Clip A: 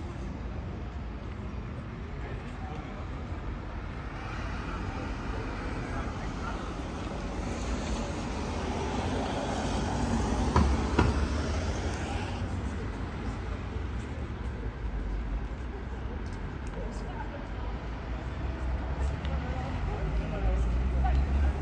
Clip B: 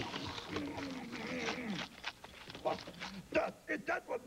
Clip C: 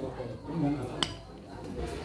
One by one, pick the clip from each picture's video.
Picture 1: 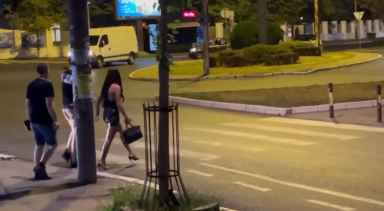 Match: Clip A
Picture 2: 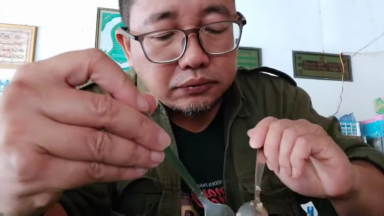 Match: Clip C